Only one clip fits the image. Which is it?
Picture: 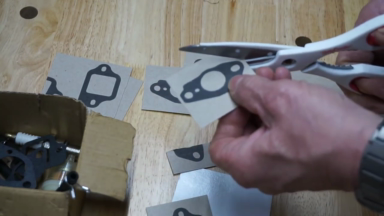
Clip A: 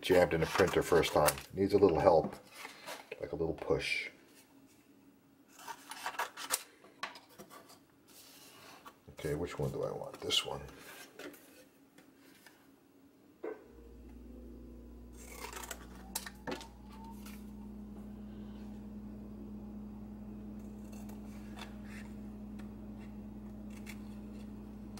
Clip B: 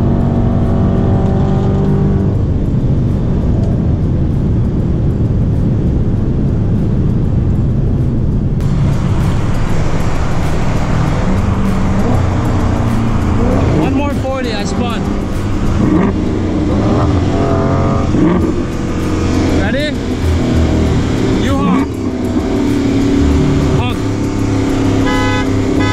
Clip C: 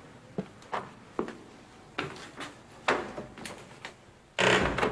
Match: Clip A